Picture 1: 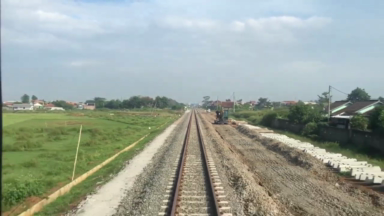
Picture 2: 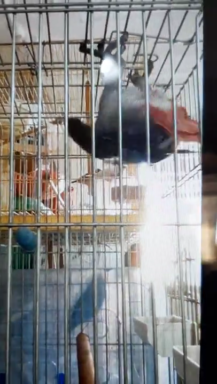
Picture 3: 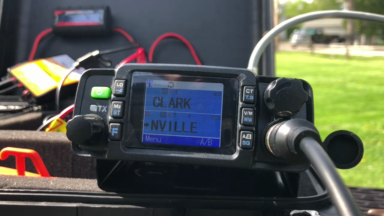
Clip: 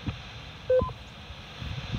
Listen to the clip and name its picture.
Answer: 3